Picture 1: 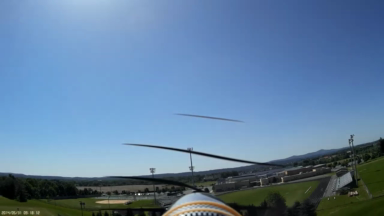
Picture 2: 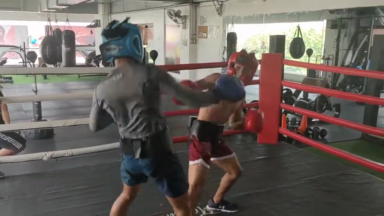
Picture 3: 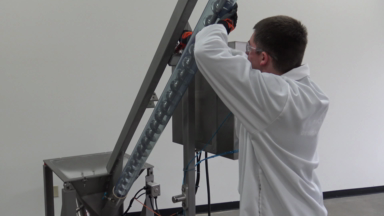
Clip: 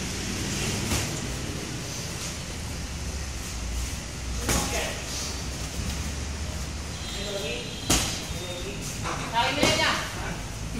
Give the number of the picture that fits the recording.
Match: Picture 2